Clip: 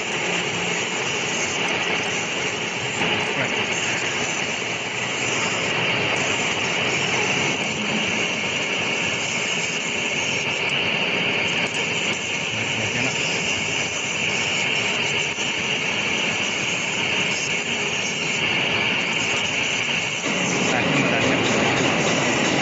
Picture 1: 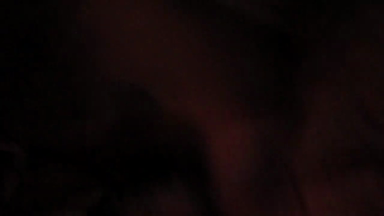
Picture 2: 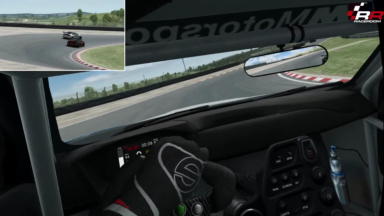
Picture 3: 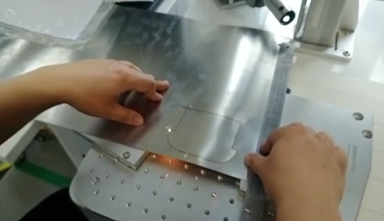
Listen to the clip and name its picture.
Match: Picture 3